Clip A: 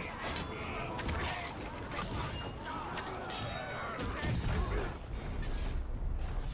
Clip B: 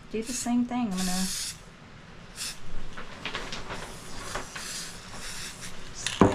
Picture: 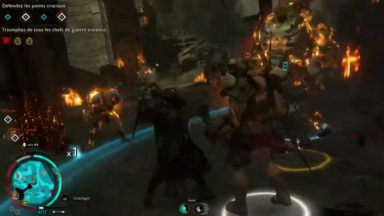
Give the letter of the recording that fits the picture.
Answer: A